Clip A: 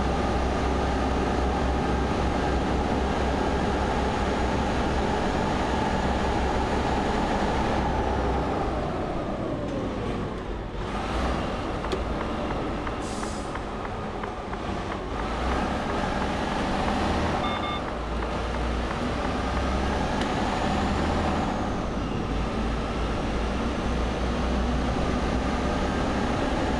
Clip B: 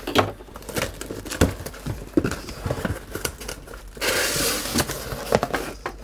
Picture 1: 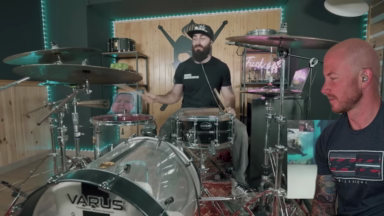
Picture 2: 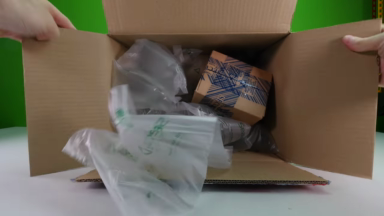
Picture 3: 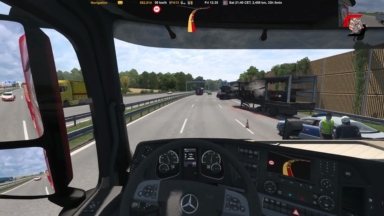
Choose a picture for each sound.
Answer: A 3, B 2